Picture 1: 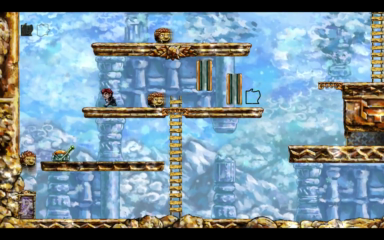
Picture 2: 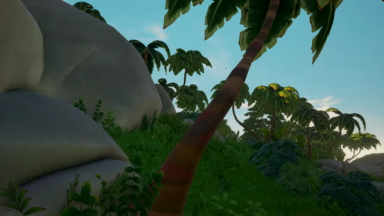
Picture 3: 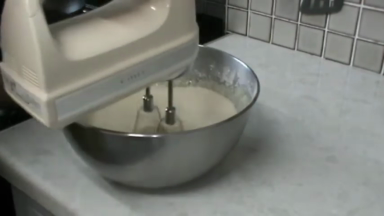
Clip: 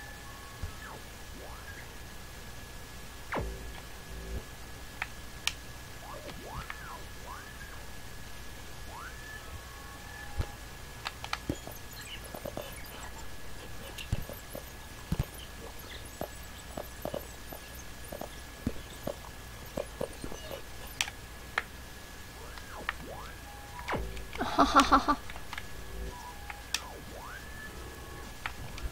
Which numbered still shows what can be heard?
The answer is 1